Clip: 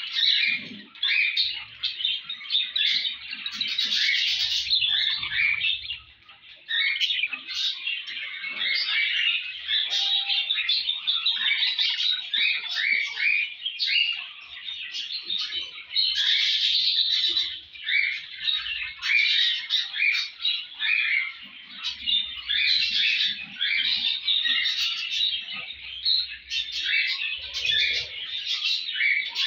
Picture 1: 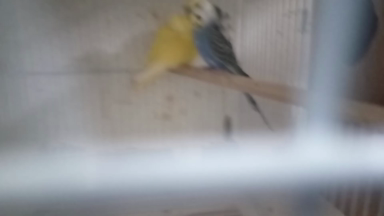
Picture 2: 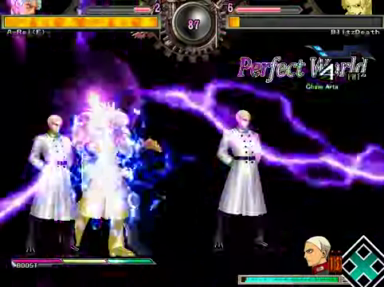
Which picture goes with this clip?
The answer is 1